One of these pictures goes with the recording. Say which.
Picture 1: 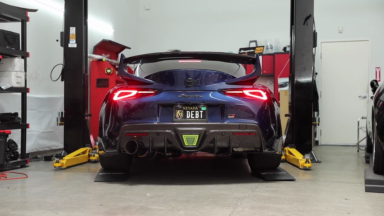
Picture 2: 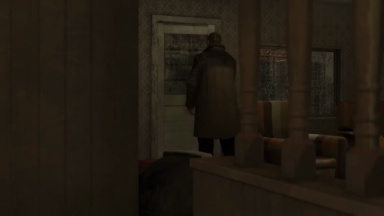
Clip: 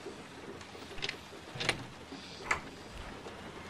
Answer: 2